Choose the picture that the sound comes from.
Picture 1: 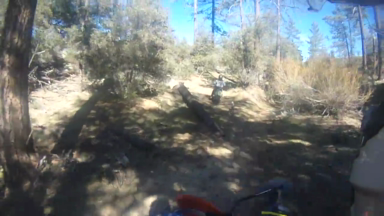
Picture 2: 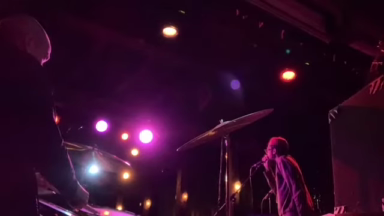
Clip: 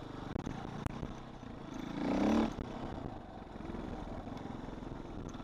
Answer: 1